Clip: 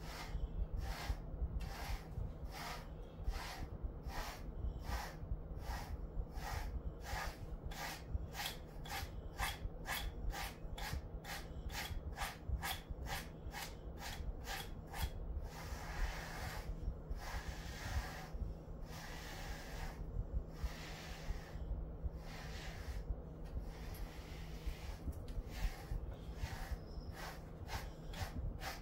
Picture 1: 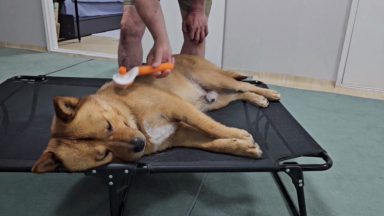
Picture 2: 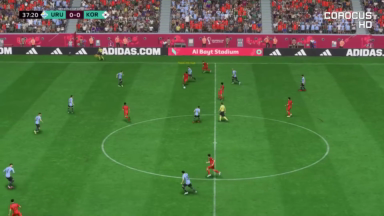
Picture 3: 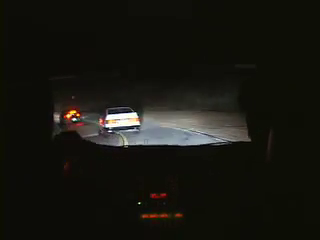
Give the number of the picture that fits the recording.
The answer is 1